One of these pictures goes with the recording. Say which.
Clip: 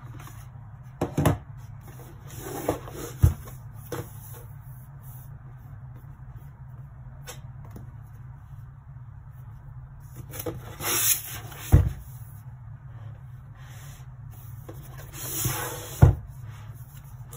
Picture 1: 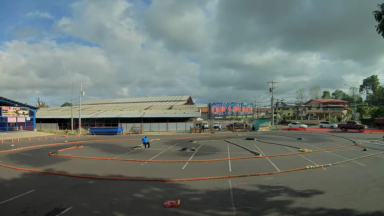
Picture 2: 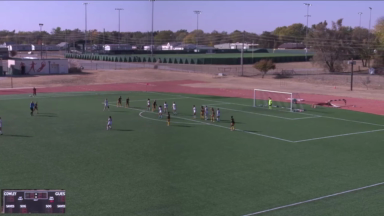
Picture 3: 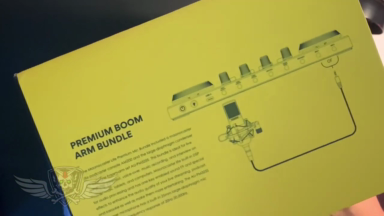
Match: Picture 3